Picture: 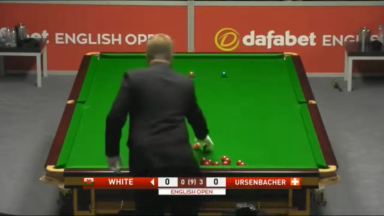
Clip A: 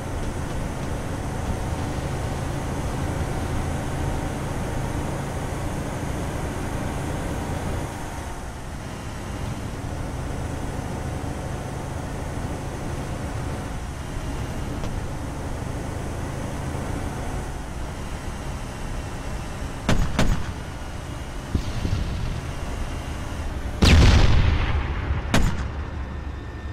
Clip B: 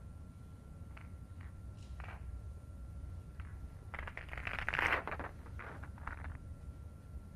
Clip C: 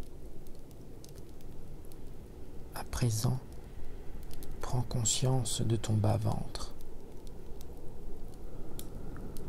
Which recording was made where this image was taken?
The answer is B